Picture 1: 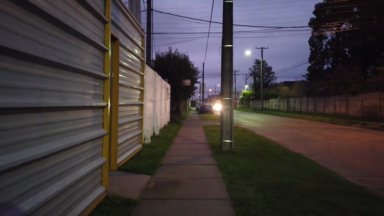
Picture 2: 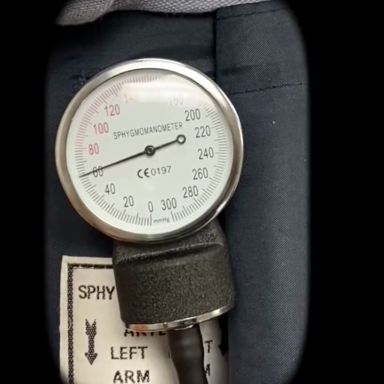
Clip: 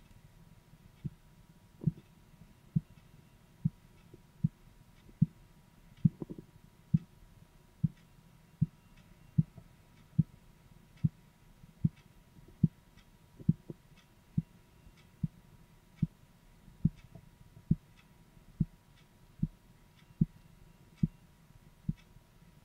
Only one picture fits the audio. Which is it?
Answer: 2